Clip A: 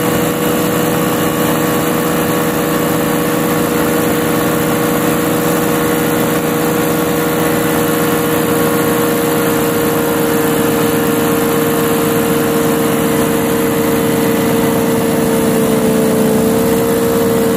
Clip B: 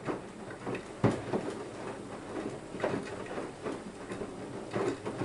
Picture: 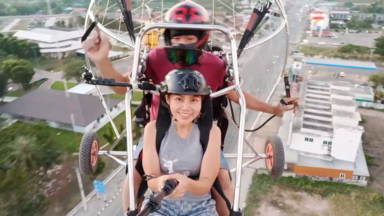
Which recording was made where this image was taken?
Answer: A